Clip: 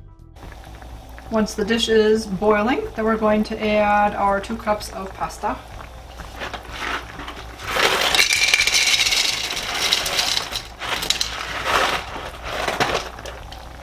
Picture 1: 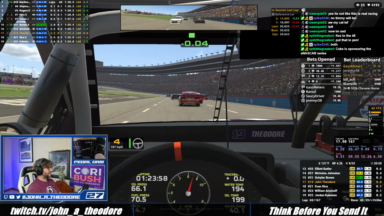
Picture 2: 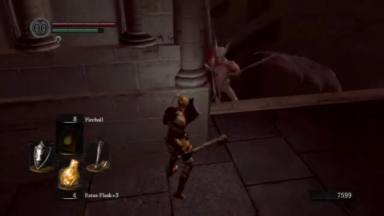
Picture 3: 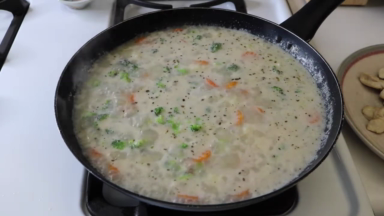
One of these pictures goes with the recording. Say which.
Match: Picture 3